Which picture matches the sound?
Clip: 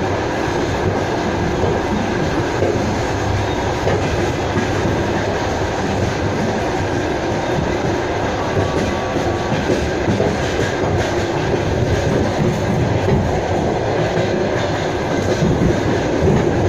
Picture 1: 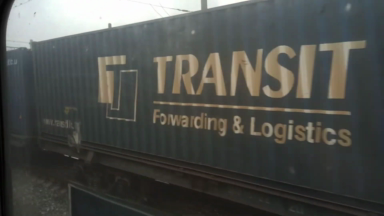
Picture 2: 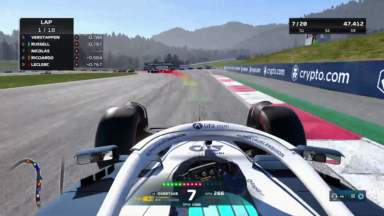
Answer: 1